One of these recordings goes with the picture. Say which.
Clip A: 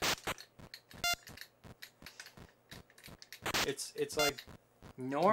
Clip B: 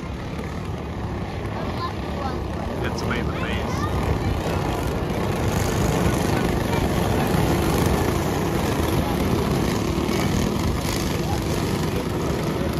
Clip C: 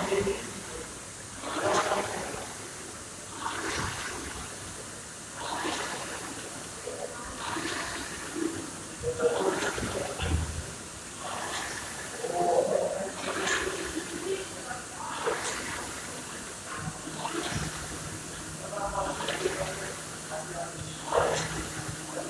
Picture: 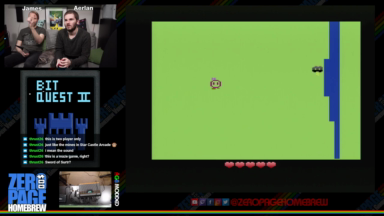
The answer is A